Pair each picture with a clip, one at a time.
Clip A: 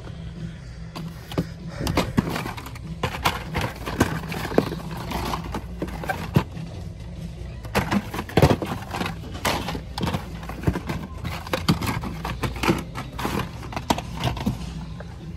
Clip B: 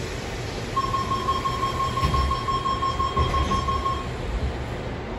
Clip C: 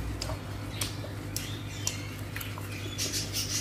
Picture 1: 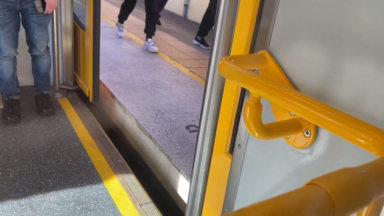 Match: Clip B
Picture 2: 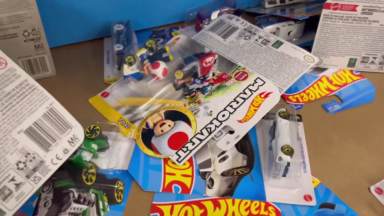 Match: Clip A